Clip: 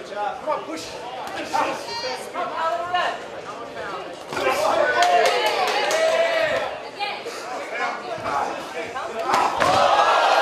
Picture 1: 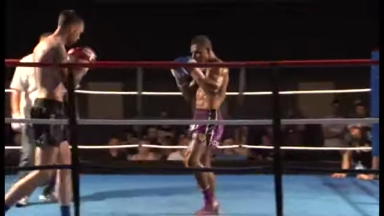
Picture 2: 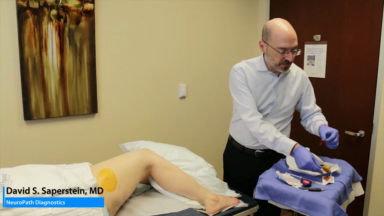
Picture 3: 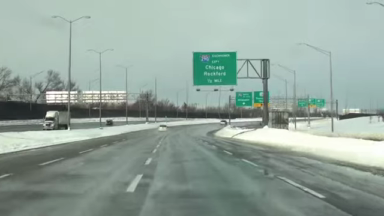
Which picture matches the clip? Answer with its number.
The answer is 1